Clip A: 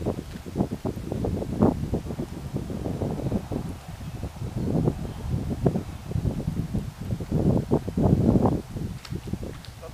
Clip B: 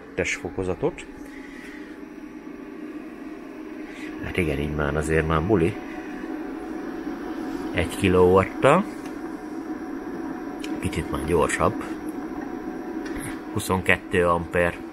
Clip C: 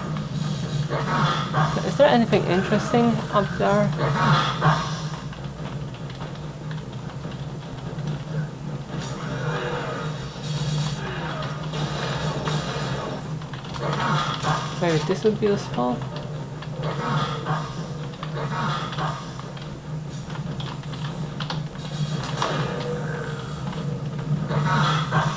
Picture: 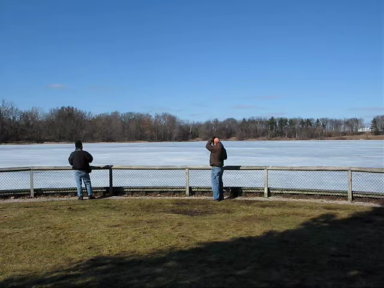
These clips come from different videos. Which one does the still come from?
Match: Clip A